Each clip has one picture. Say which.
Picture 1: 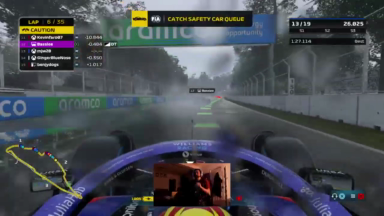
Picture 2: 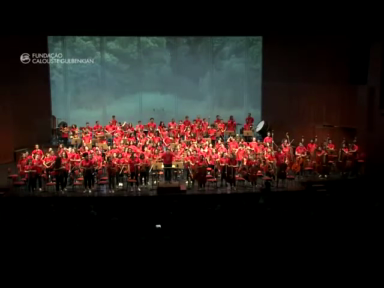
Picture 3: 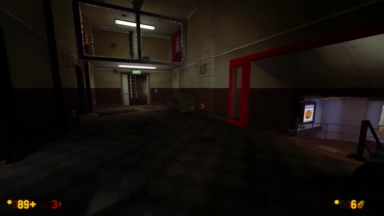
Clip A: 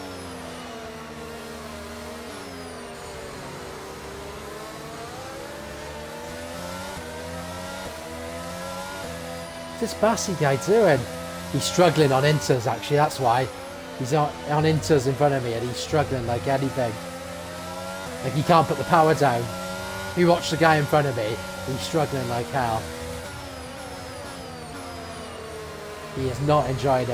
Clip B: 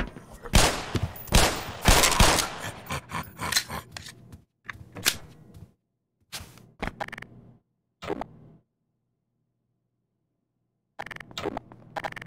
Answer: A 1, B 3